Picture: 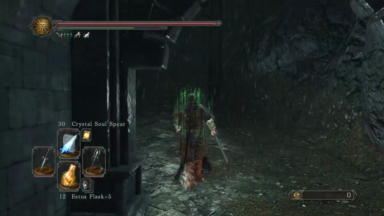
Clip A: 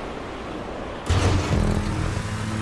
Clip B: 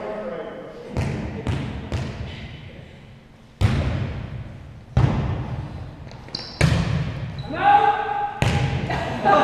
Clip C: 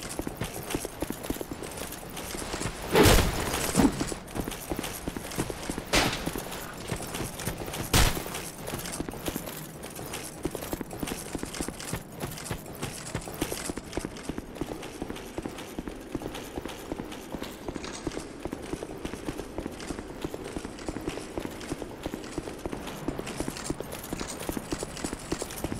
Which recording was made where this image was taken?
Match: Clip C